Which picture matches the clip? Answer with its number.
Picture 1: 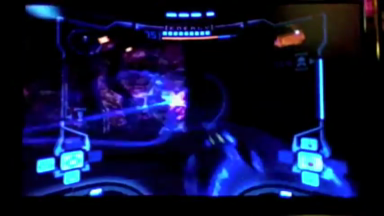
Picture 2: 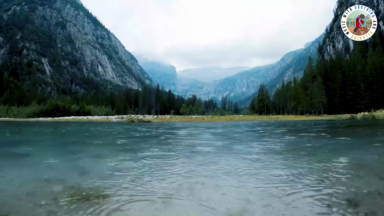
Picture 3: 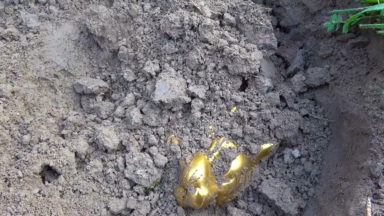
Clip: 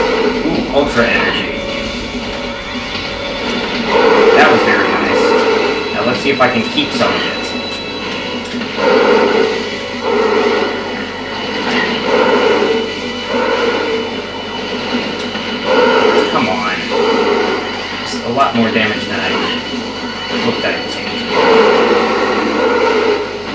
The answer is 1